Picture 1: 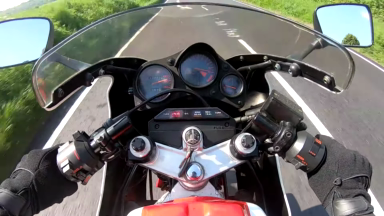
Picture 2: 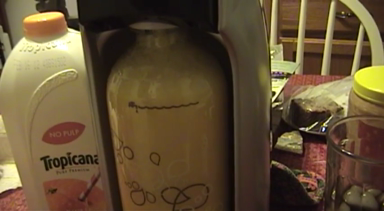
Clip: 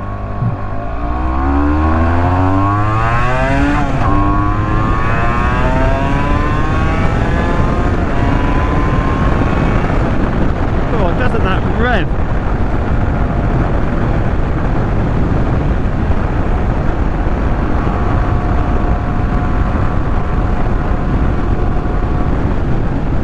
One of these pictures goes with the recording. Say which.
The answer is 1